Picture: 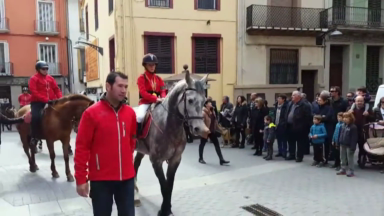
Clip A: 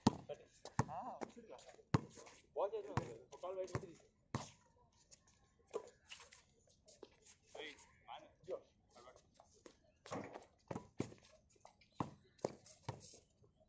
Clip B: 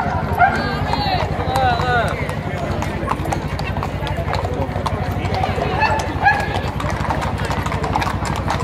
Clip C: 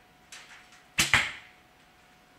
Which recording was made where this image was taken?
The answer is B